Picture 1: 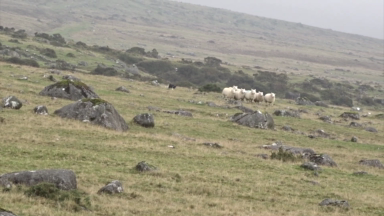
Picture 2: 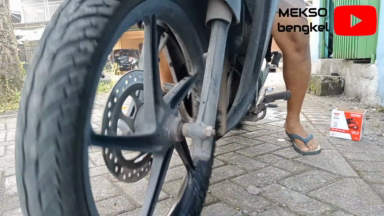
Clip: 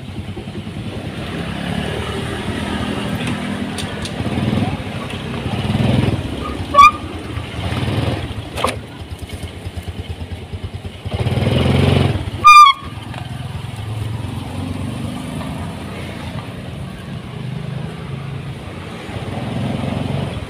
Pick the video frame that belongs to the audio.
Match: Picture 2